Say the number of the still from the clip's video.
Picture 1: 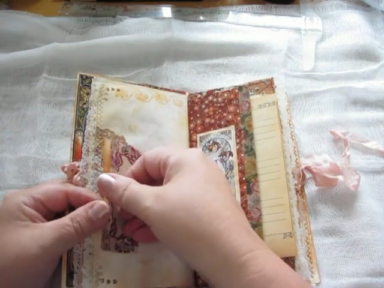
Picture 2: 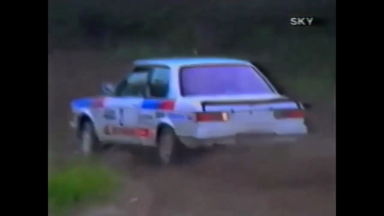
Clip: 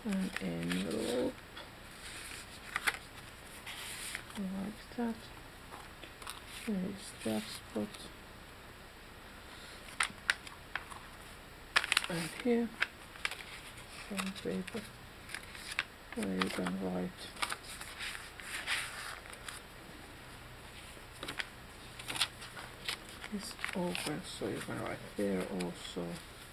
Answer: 1